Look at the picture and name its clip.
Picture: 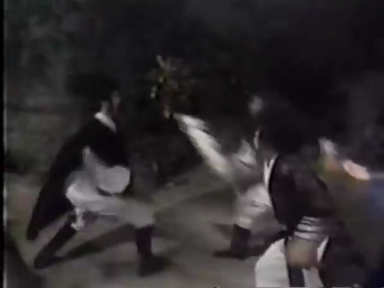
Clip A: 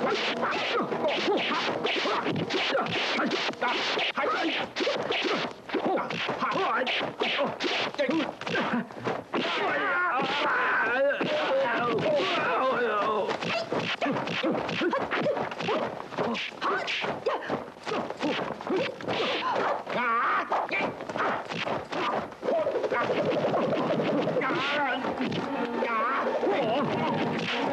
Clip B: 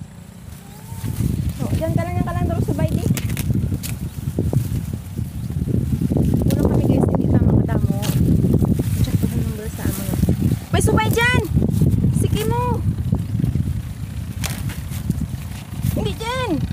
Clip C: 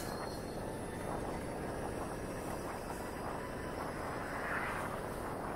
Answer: A